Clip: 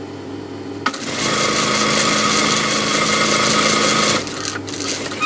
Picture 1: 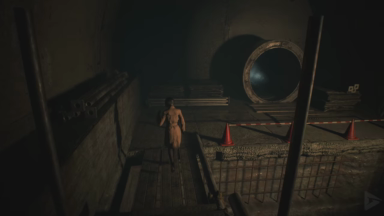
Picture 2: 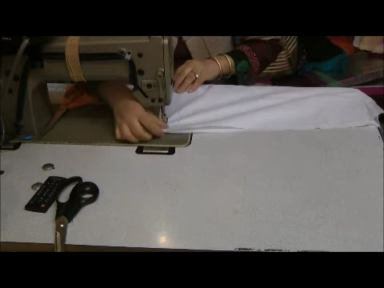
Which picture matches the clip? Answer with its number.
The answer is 2